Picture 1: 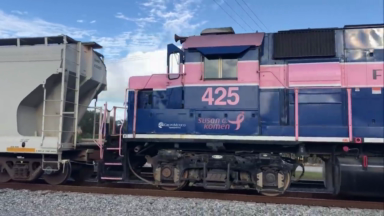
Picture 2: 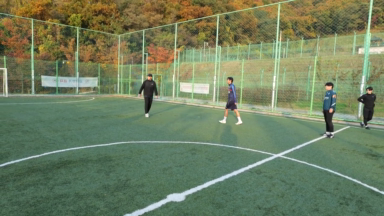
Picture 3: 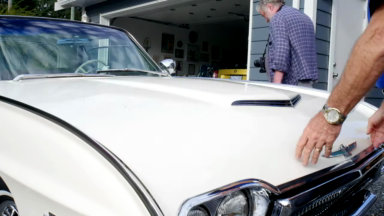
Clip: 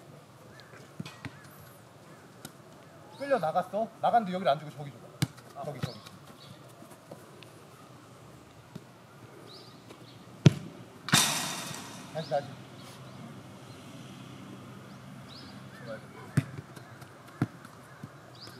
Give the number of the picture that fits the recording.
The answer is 2